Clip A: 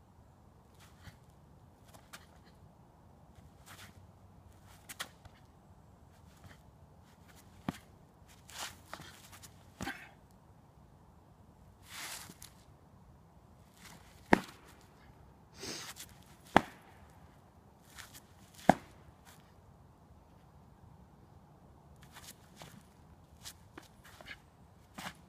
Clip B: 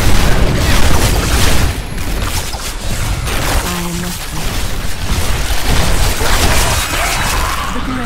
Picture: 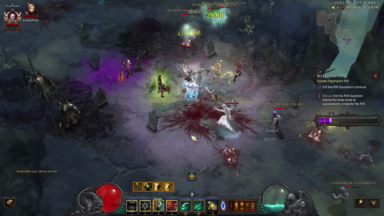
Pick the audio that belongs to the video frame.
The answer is B